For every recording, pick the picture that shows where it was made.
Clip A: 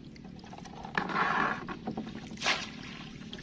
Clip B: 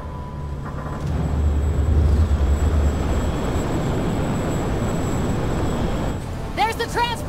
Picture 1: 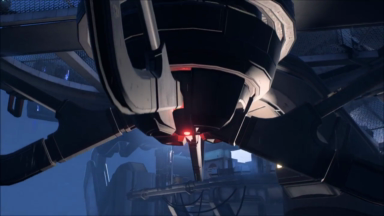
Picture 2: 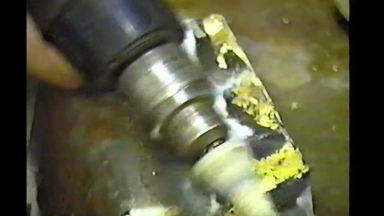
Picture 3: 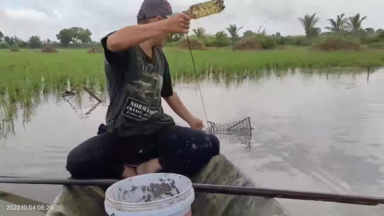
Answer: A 3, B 1